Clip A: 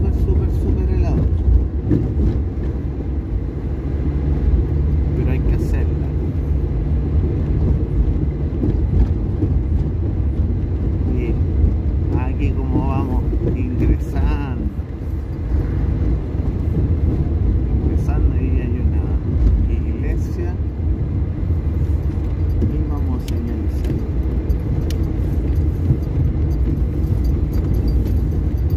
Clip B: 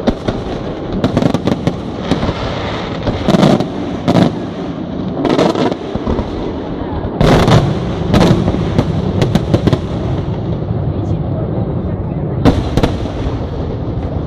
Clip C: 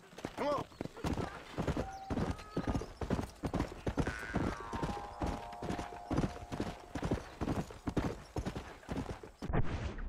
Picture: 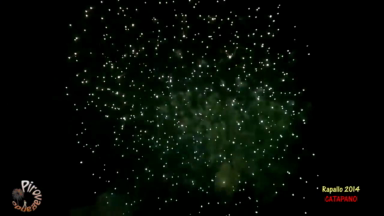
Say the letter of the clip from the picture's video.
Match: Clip B